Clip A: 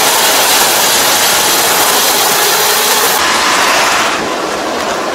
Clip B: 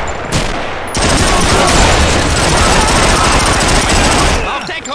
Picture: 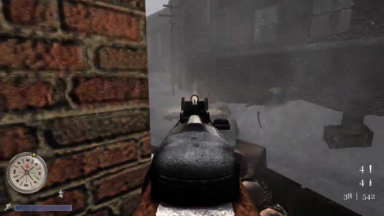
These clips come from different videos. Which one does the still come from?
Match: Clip B